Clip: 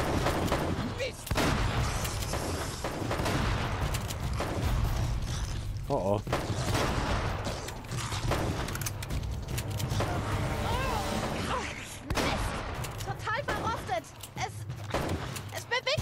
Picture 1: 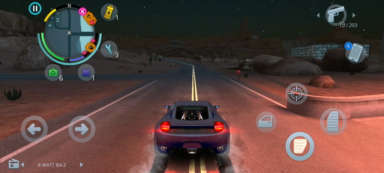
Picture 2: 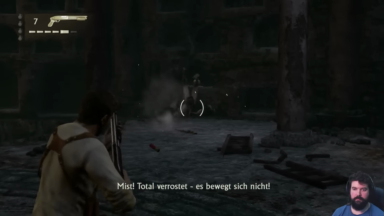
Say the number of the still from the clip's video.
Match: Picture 2